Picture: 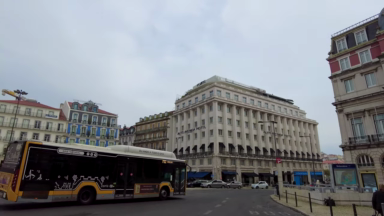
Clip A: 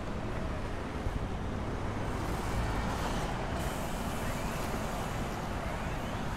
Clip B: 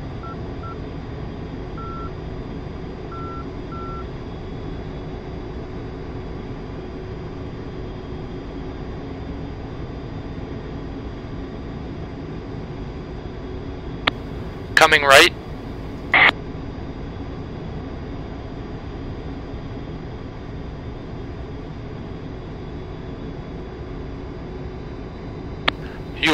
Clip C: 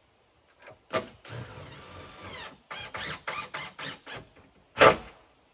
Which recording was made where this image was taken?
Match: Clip A